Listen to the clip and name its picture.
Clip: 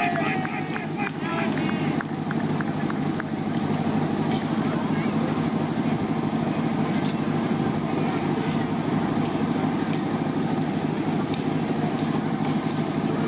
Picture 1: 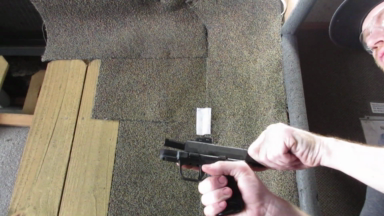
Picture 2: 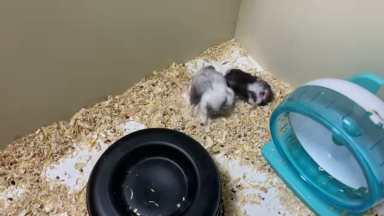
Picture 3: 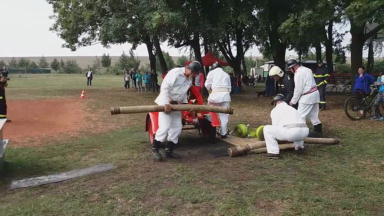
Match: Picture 3